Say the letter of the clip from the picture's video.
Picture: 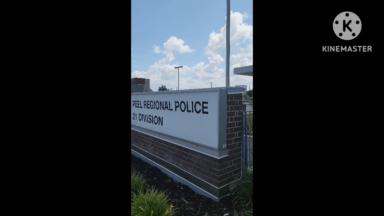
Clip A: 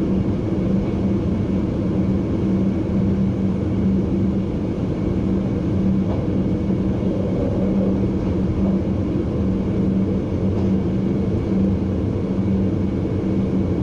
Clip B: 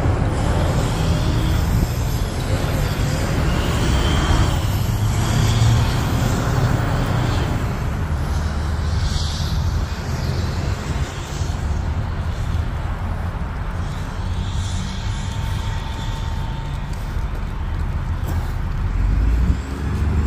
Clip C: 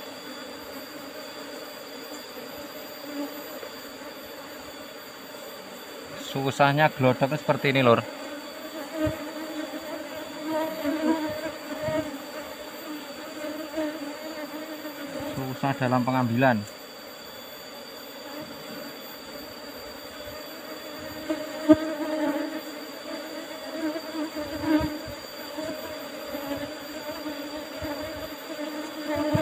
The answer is B